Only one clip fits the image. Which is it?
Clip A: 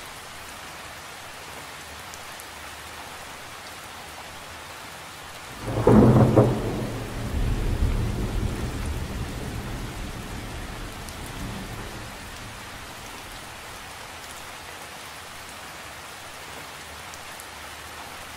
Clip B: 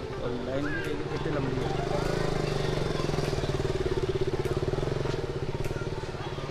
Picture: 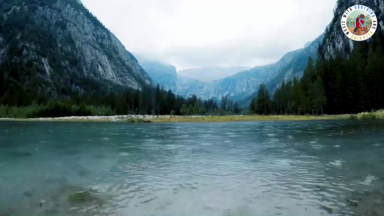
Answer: A